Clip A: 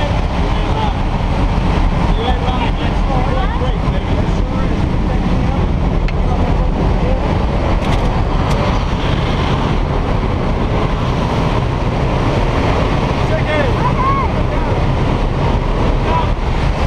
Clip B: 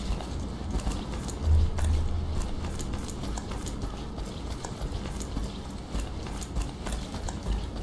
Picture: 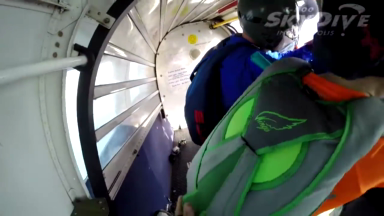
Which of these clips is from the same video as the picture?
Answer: A